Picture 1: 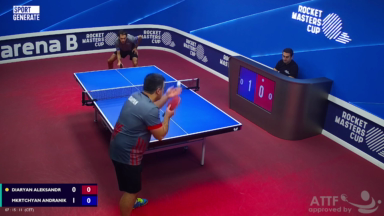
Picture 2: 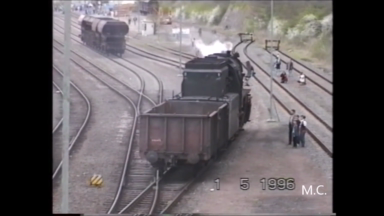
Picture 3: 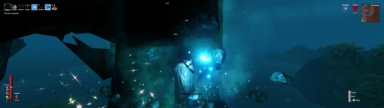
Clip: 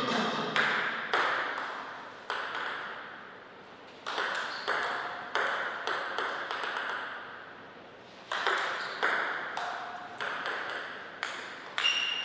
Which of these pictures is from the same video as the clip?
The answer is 1